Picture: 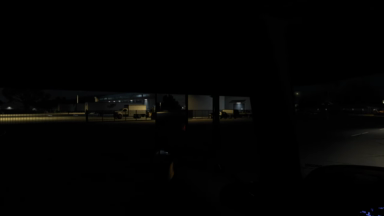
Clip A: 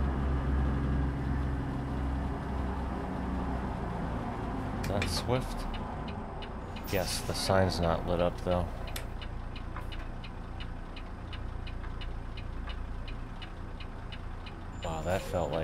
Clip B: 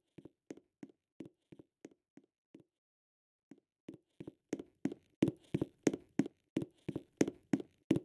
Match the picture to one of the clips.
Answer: A